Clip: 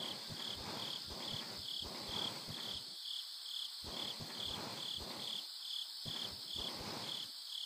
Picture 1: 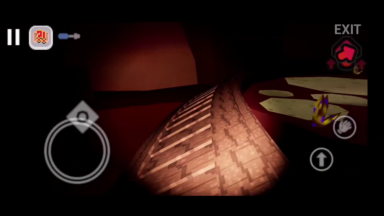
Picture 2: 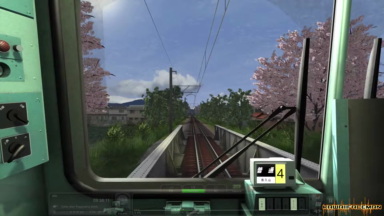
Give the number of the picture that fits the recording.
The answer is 1